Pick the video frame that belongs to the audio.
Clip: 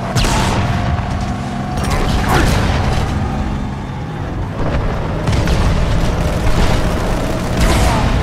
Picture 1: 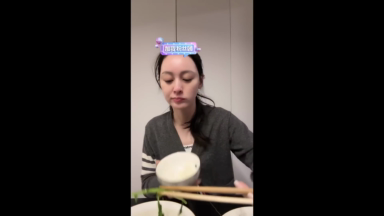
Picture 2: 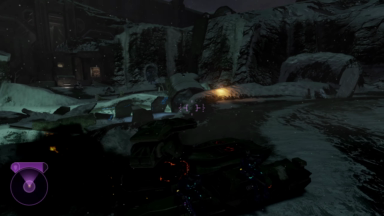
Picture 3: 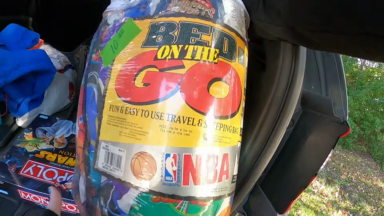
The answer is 2